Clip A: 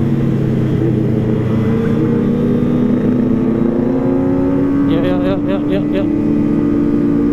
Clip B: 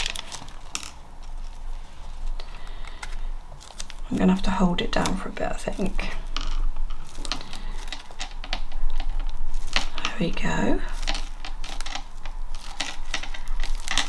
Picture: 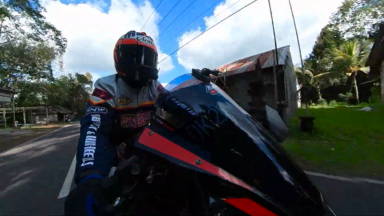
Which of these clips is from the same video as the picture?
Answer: A